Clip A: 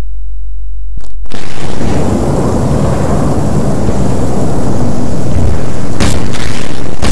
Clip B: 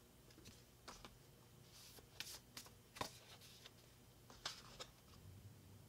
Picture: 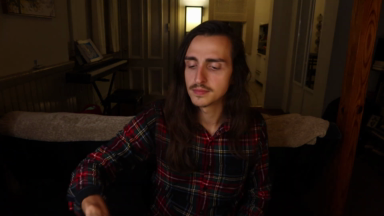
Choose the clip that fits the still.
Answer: B